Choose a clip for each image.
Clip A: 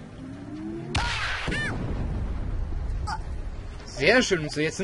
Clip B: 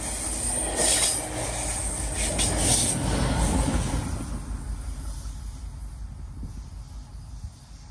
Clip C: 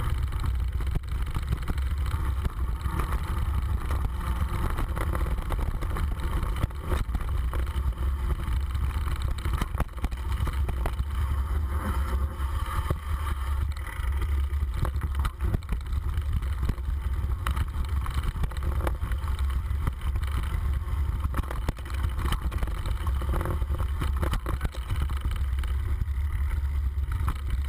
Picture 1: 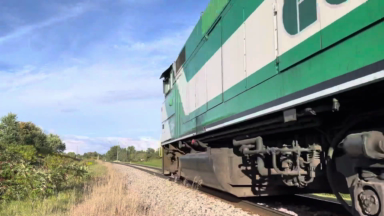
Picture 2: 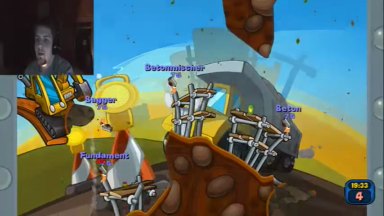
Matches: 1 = B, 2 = A